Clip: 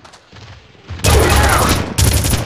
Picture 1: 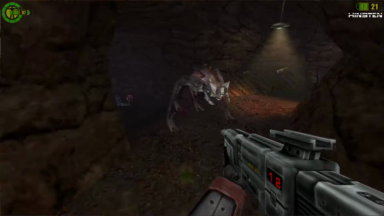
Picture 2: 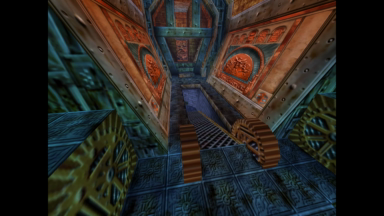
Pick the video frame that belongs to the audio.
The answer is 1